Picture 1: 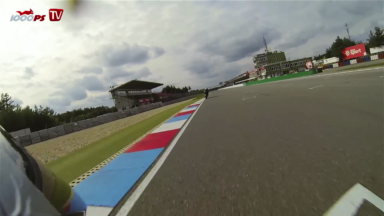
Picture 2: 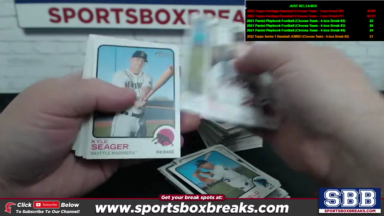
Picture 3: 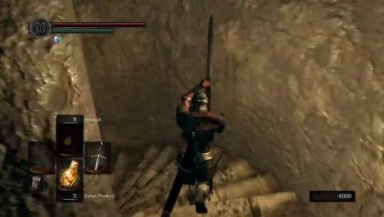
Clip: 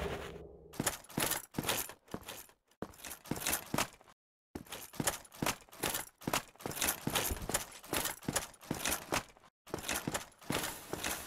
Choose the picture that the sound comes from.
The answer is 3